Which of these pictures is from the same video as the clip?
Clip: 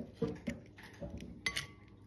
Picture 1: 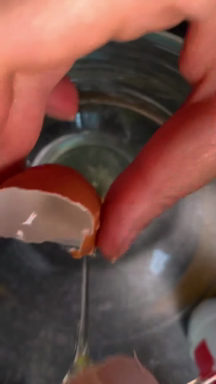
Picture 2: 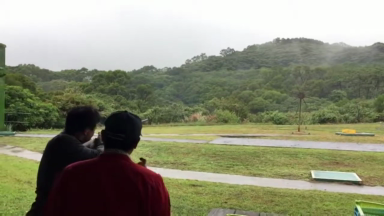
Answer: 1